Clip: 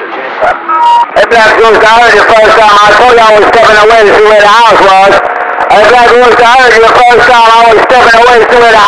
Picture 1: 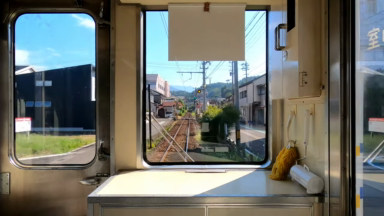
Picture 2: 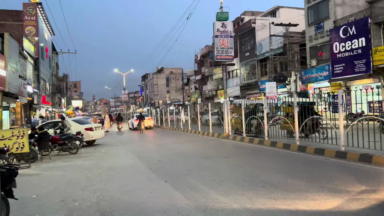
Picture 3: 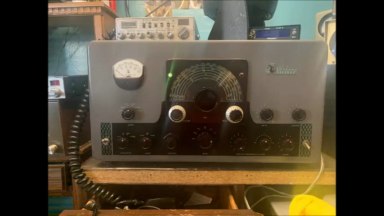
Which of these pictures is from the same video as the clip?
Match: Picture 3